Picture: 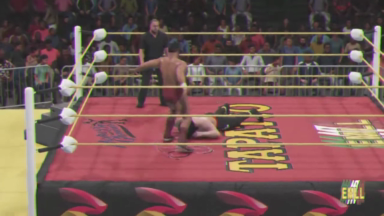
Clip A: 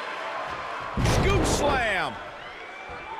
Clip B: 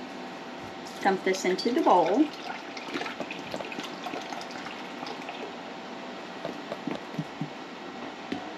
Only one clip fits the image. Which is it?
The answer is A